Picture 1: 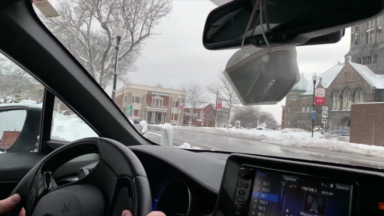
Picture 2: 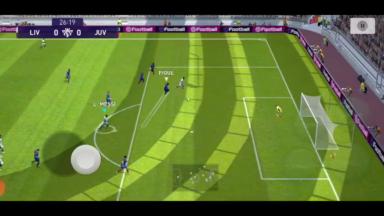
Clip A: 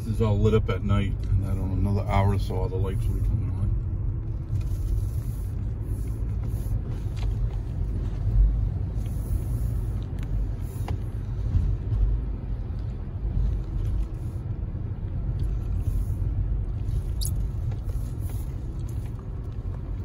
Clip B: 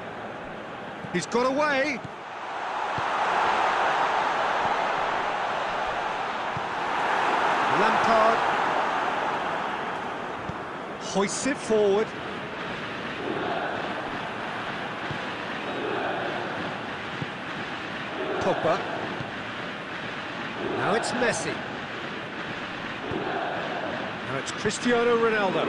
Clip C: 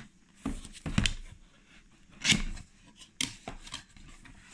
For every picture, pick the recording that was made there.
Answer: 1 A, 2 B